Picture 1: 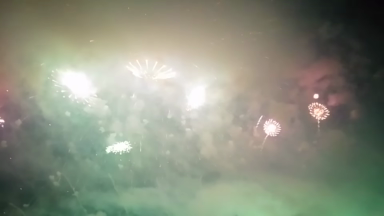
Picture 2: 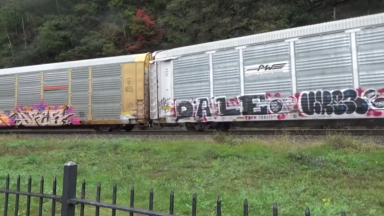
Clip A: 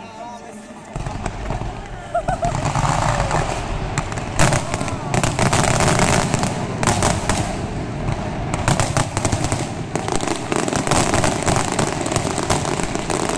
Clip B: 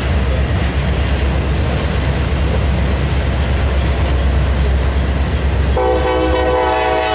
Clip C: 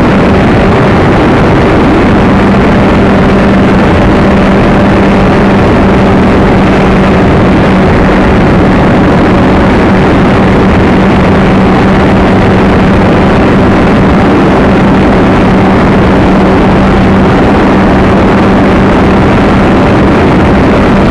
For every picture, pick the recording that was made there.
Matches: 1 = A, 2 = B